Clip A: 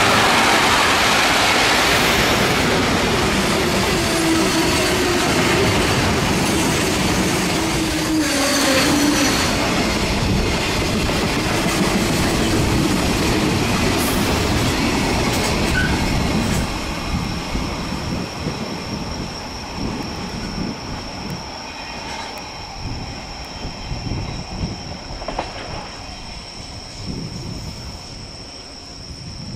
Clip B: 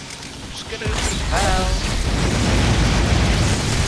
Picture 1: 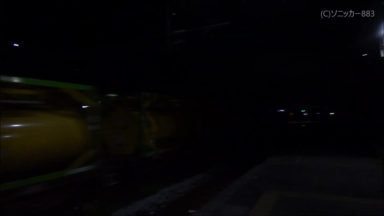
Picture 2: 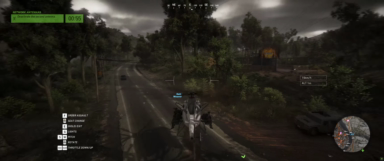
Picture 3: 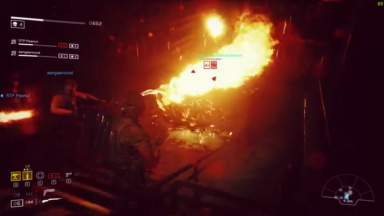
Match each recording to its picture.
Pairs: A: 1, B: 3